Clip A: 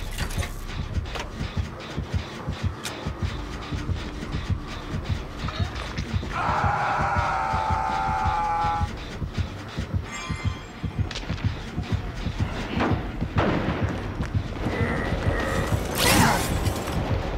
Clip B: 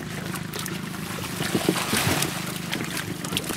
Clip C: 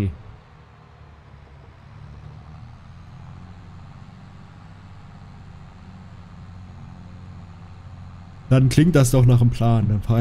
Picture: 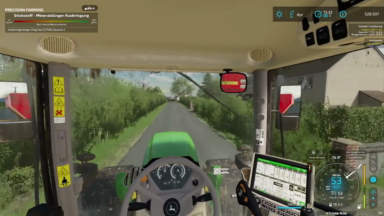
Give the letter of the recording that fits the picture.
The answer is C